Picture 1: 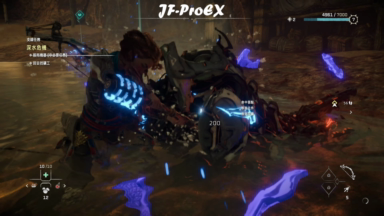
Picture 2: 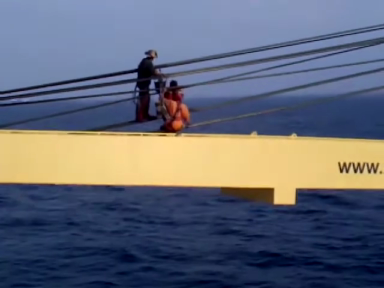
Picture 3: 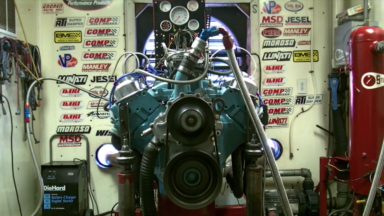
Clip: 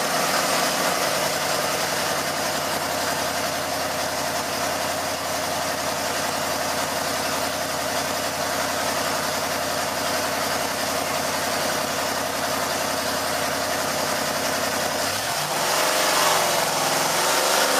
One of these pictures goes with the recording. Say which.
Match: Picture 3